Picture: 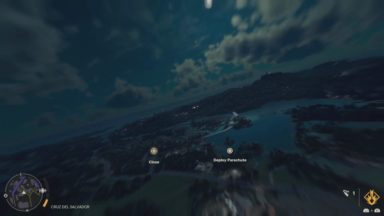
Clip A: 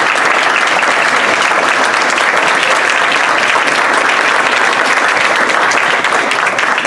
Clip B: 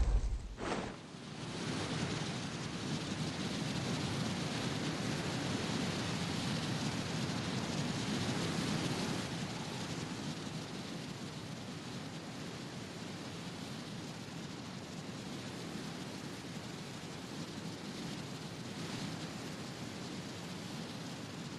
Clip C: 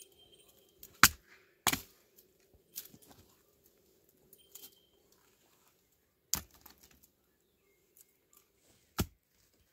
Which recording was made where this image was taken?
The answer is B